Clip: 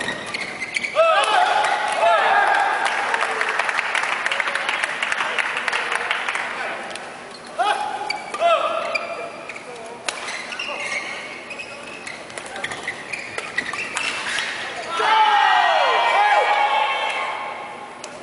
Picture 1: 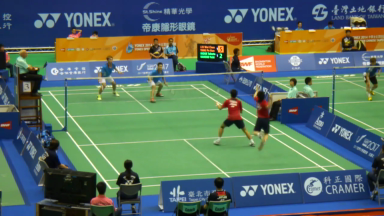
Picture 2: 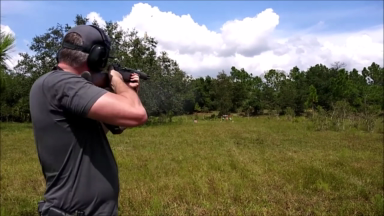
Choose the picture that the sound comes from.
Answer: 1